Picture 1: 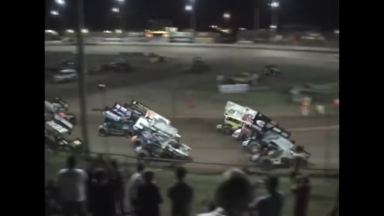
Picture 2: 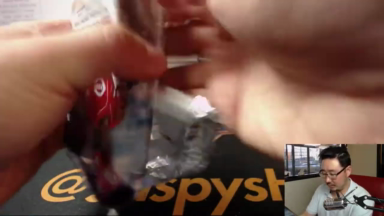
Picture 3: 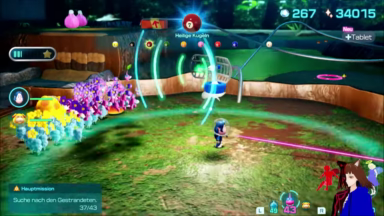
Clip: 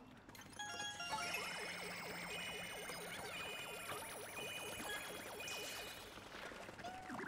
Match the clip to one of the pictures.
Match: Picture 3